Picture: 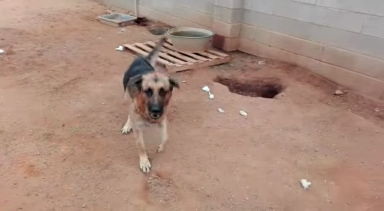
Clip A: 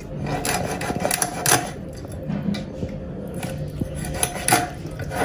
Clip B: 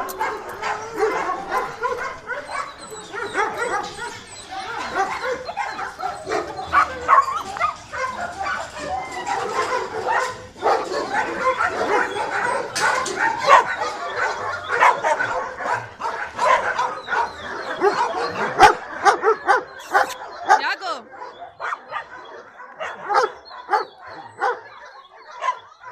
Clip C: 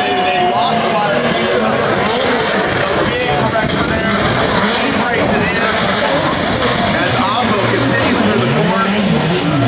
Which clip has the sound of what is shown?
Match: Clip B